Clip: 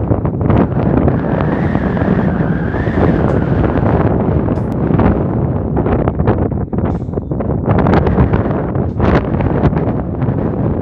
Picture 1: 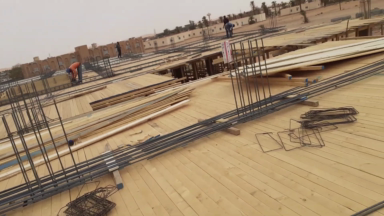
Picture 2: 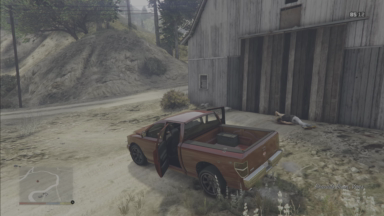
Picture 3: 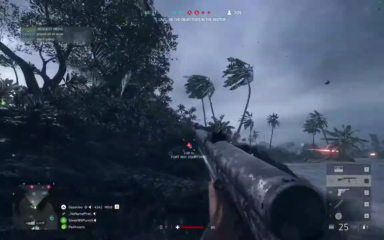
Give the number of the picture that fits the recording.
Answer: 1